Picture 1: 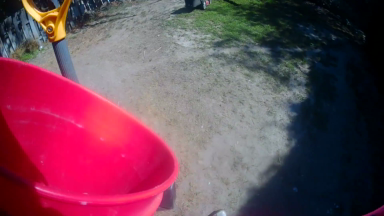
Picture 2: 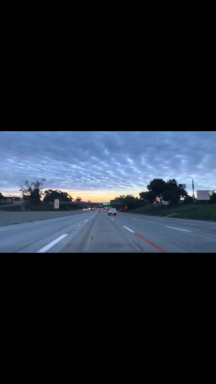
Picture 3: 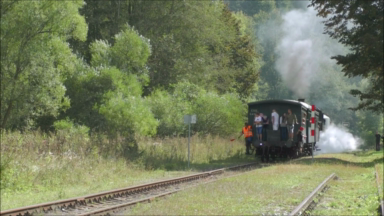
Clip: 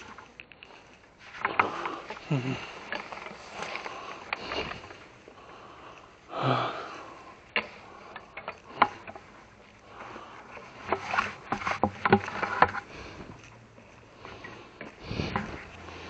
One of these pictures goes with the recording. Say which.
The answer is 1